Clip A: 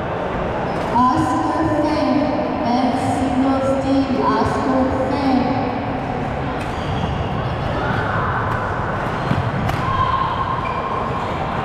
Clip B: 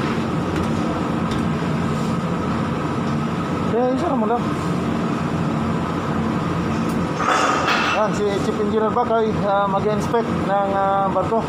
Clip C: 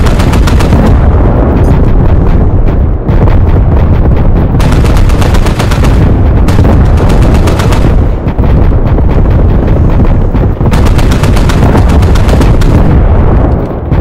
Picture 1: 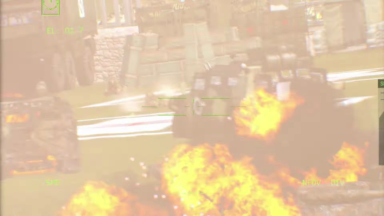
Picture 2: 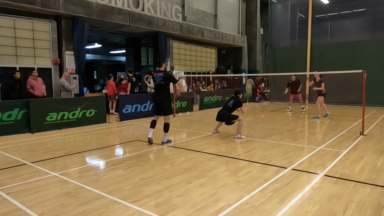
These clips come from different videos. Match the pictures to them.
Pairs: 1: C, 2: A